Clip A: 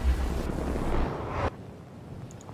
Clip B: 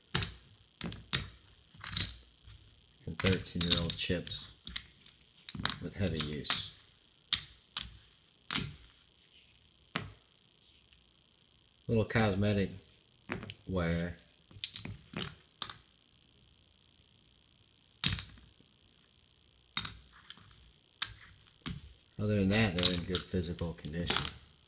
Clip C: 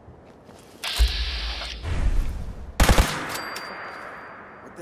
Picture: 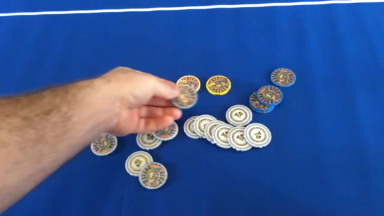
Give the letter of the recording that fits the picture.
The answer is B